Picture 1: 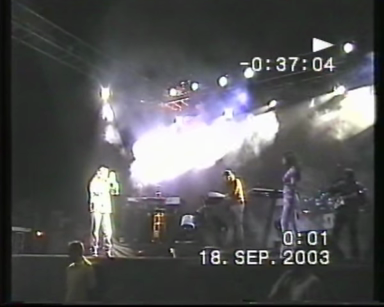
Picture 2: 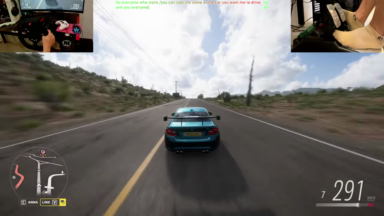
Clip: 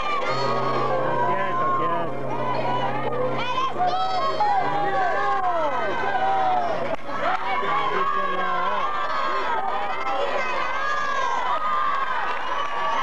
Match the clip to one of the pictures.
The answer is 1